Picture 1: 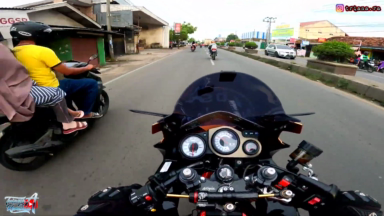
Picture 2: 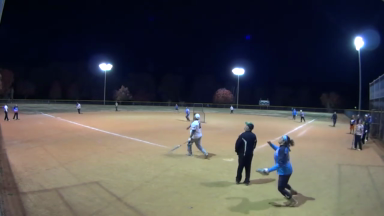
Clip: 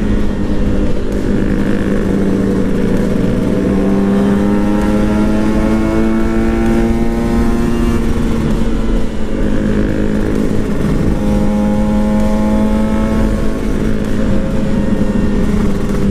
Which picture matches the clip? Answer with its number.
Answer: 1